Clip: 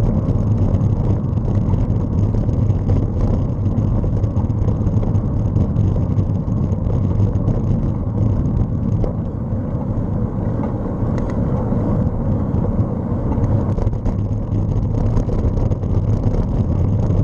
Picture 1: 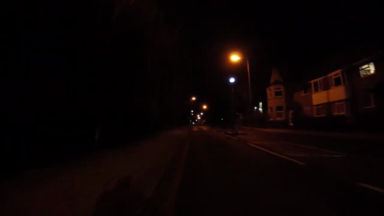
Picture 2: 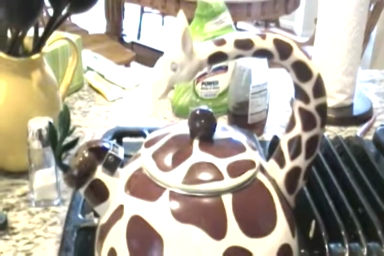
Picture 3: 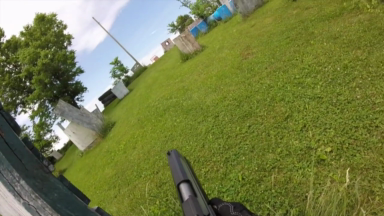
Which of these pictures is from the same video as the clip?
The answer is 1